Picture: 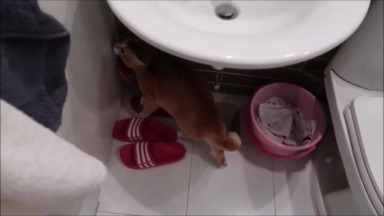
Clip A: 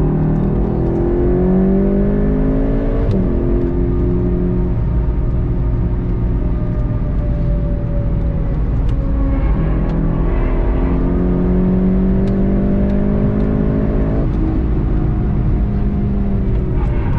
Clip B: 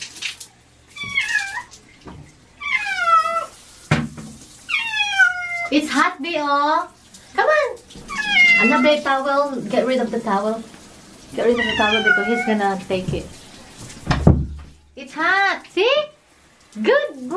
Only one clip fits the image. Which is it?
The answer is B